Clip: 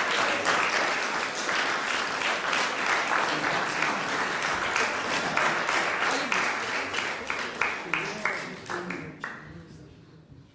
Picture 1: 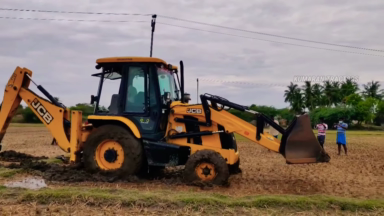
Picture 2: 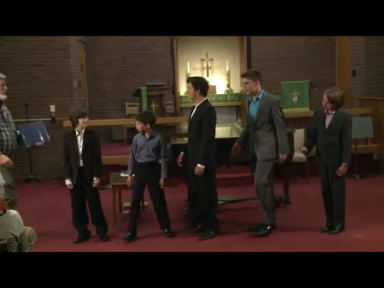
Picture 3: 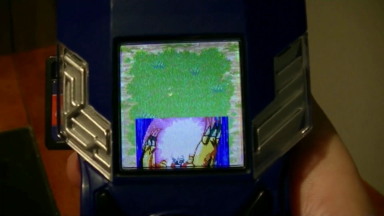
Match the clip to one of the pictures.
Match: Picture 2